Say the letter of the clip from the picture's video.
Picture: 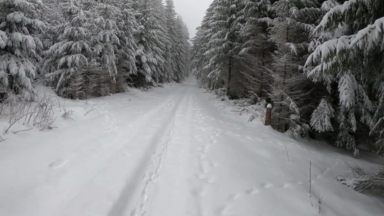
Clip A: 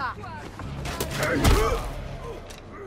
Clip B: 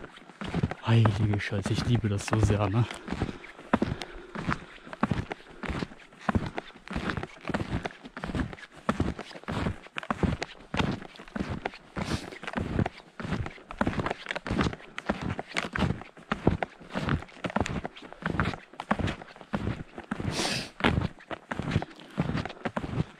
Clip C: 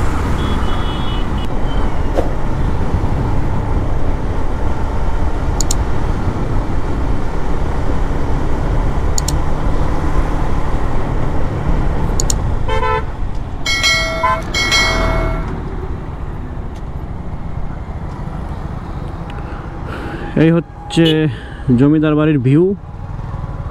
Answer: B